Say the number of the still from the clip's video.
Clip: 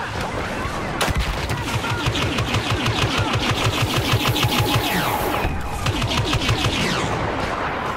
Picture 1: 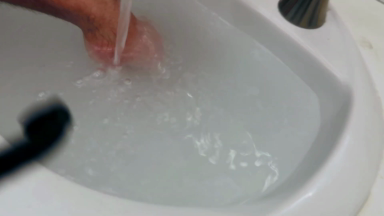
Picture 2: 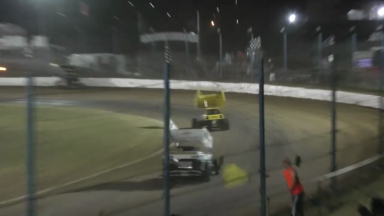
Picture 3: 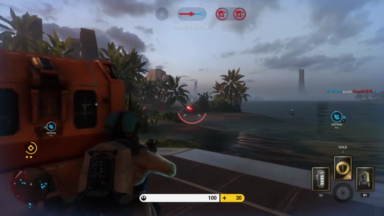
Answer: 3